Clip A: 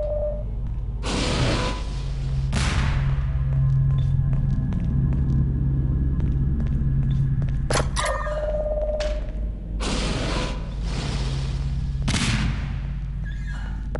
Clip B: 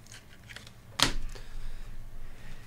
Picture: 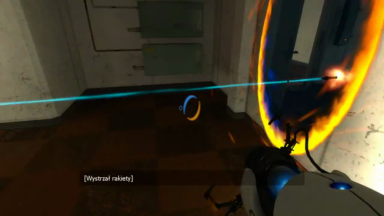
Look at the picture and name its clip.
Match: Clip A